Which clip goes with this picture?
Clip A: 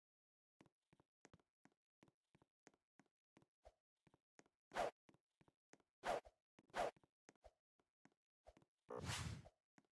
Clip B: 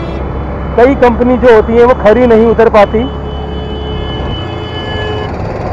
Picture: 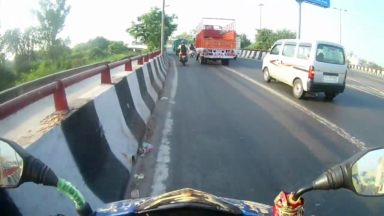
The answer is B